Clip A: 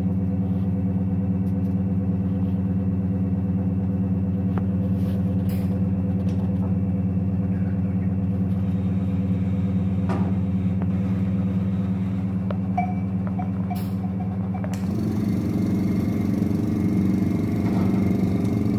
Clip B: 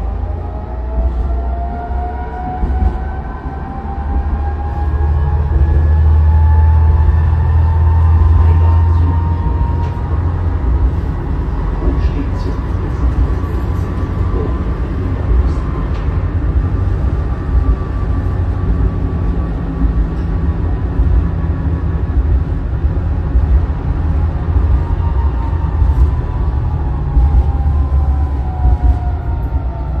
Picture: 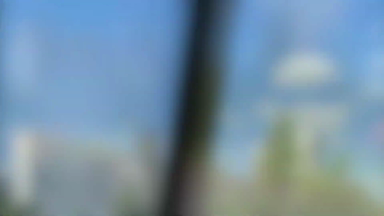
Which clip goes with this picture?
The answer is B